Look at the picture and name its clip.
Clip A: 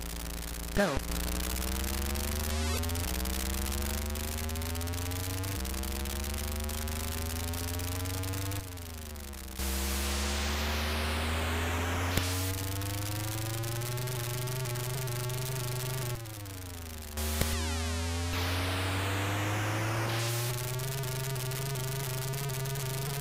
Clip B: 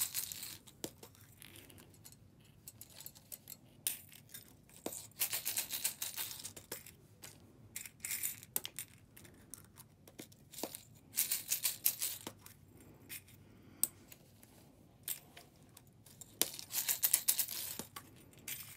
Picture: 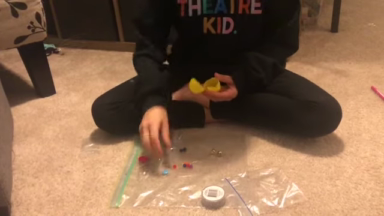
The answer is B